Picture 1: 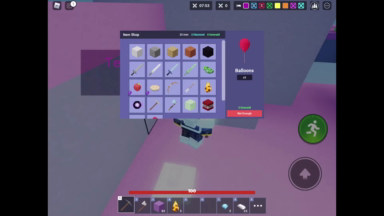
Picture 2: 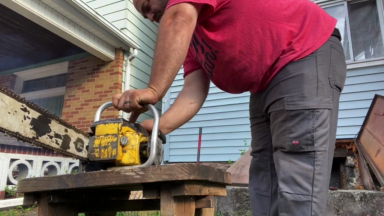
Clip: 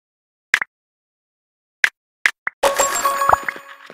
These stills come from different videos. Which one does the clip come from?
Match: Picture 1